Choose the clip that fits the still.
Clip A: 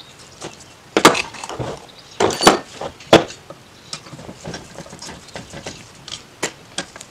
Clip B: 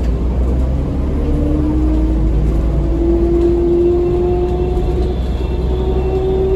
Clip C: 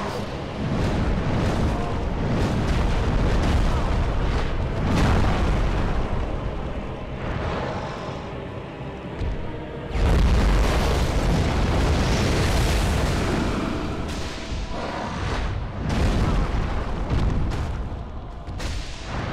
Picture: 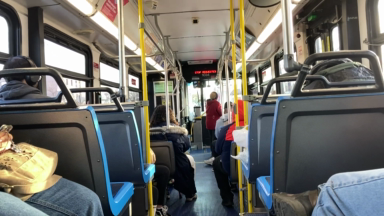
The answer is B